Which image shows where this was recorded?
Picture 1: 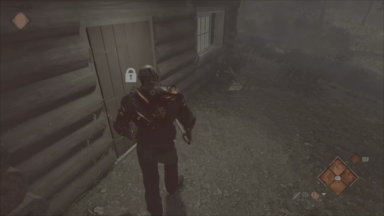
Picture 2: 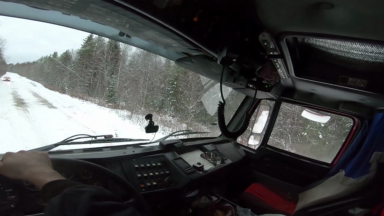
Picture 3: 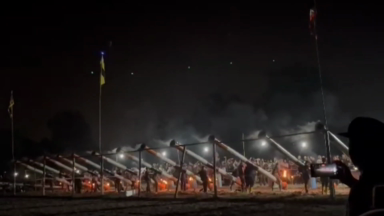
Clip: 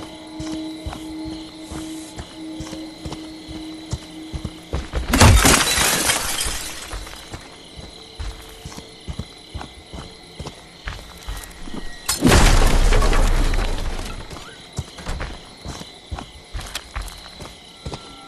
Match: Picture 1